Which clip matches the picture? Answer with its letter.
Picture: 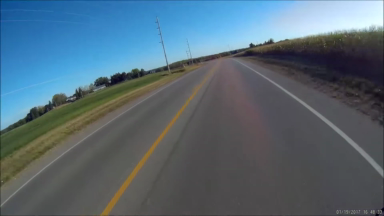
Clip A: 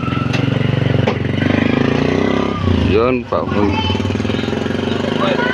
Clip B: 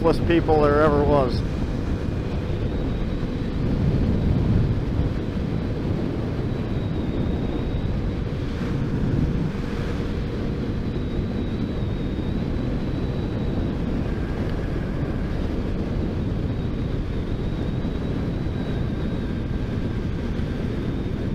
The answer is B